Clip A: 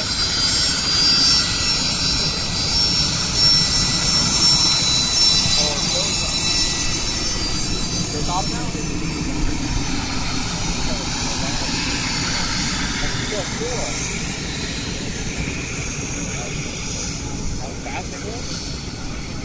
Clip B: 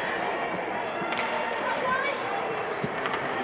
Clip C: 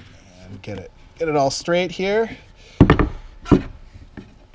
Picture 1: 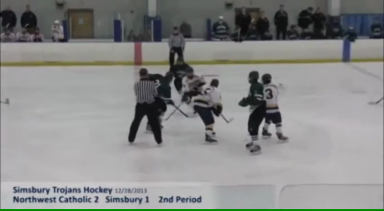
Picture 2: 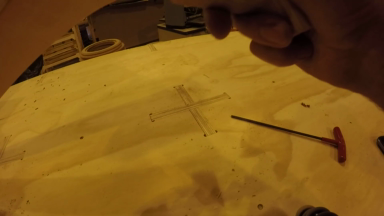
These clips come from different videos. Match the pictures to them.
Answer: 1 B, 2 C